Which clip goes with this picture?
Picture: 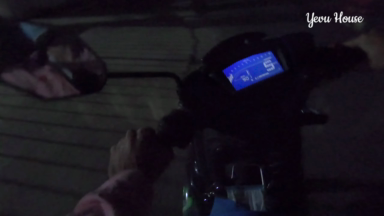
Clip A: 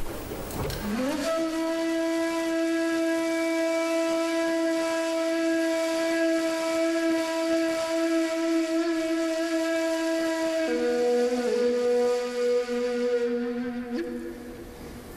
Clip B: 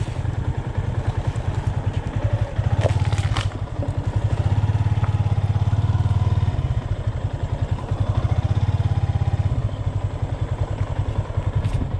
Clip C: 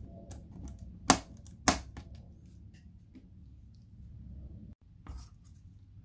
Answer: B